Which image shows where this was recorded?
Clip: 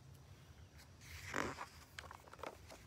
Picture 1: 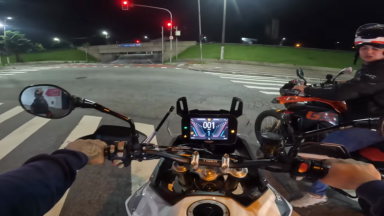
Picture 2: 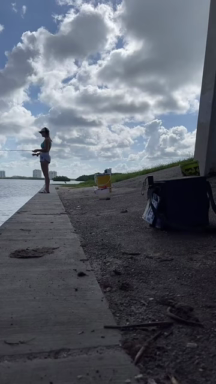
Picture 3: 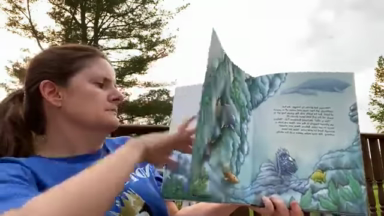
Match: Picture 3